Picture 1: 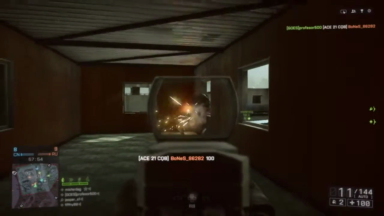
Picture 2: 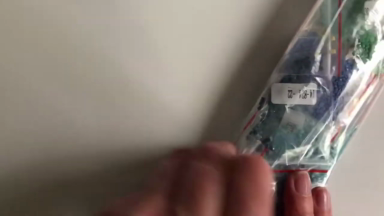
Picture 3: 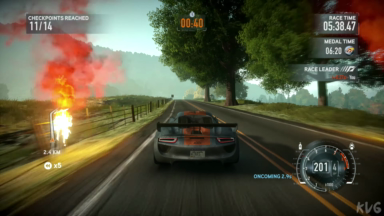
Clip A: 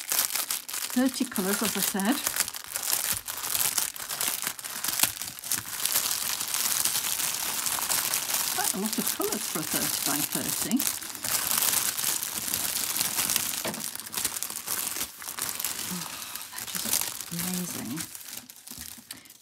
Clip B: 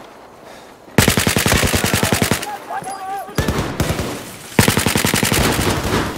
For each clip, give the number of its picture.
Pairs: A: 2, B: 1